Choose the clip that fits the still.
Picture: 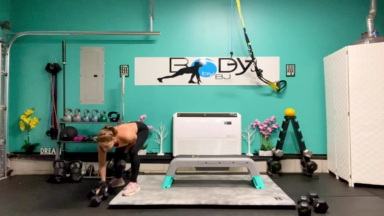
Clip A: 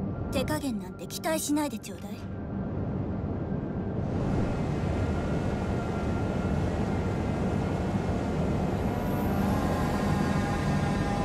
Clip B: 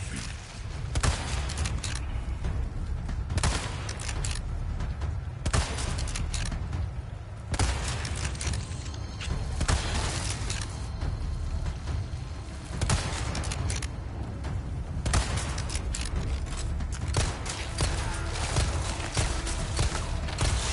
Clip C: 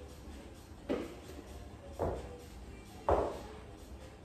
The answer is C